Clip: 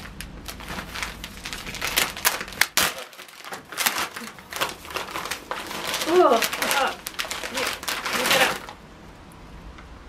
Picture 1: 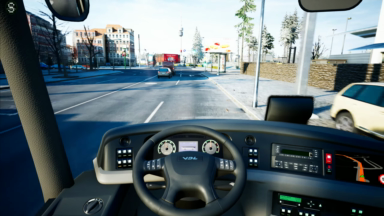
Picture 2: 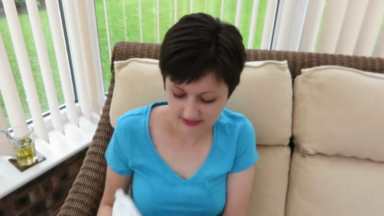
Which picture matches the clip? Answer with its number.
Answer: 2